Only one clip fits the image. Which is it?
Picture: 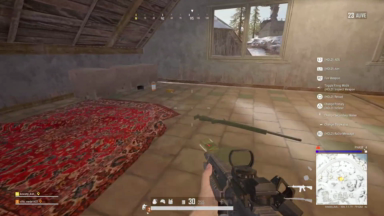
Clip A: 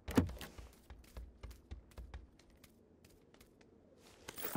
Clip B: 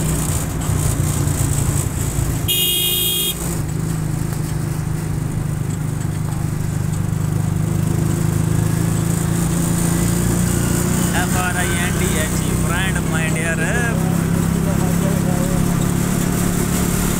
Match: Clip A